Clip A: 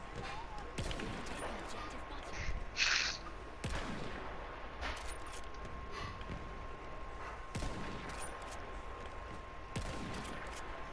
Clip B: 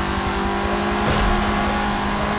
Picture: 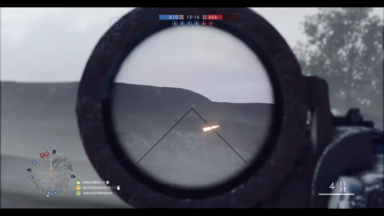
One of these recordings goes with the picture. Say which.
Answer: A